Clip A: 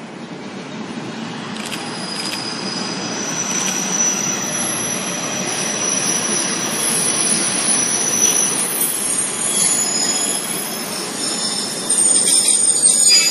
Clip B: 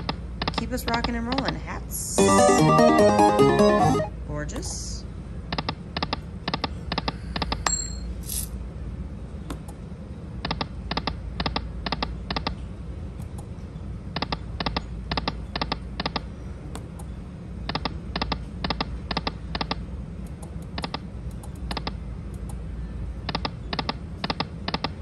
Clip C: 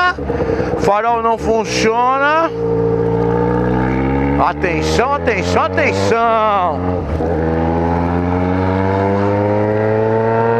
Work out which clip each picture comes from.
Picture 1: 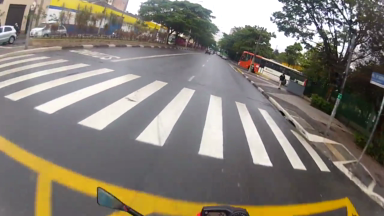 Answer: C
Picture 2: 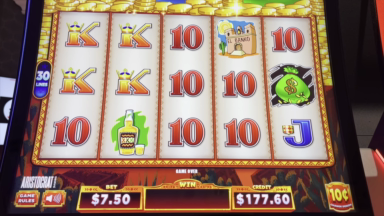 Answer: B